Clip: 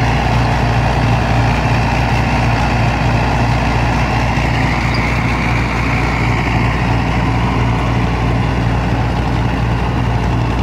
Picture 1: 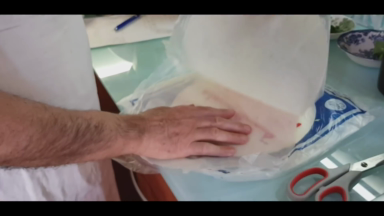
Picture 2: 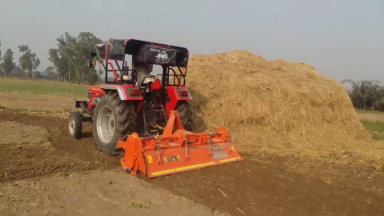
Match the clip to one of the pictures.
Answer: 2